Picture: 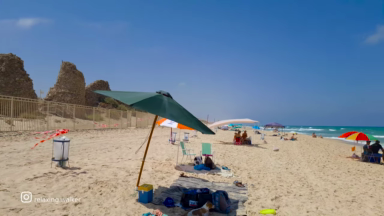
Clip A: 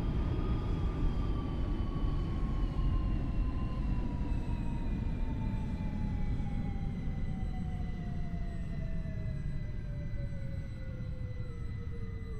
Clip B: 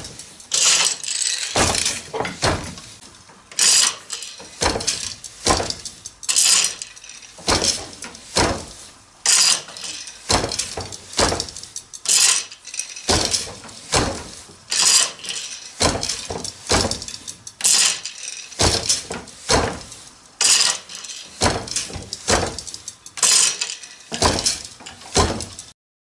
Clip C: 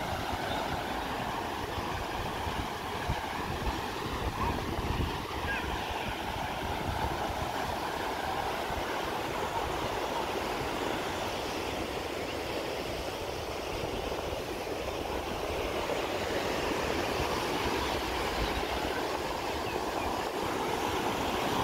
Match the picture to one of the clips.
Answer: C